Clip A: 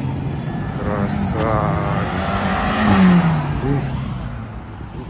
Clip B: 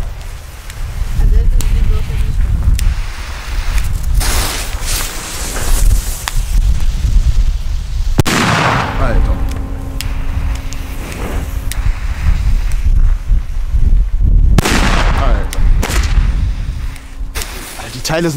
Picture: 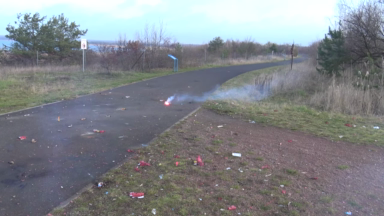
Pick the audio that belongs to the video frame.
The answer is B